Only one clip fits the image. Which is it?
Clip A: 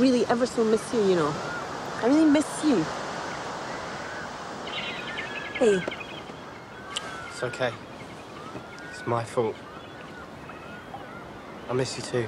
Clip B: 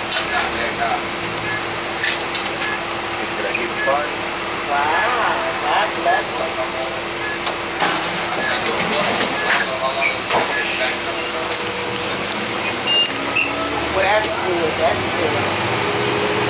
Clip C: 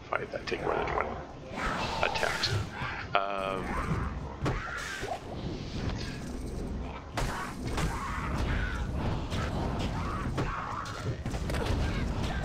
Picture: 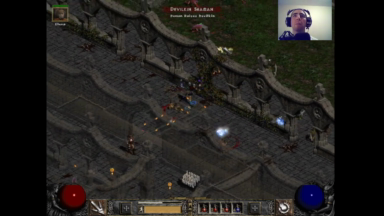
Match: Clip C